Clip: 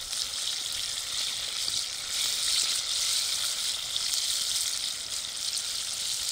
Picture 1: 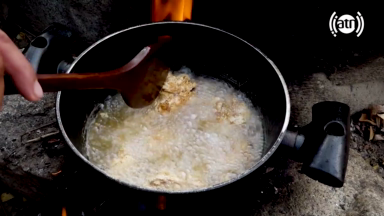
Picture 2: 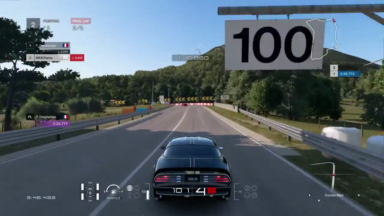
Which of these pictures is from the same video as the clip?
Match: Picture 1